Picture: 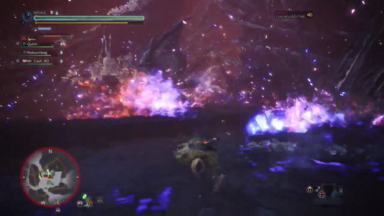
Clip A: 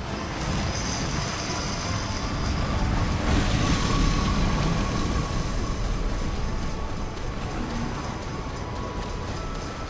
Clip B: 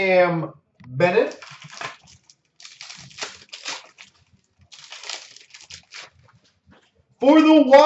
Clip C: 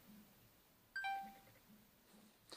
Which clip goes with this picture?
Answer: A